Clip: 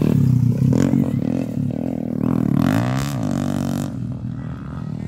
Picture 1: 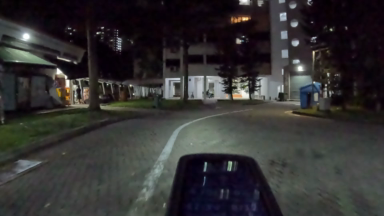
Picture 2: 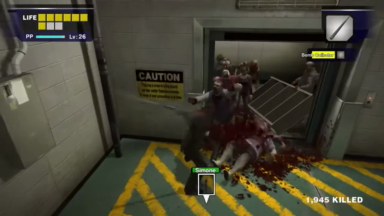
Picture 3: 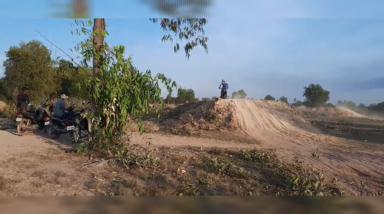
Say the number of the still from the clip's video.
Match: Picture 3